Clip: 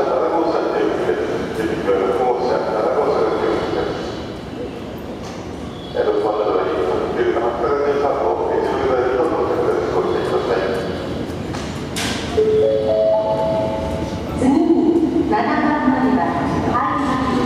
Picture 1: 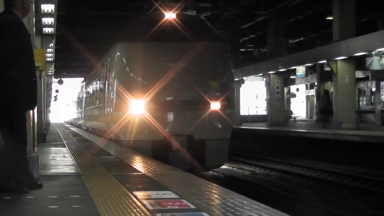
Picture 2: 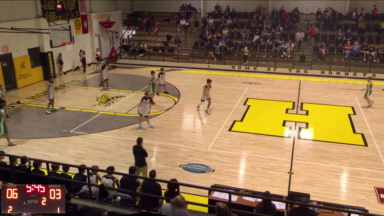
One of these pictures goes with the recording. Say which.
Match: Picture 1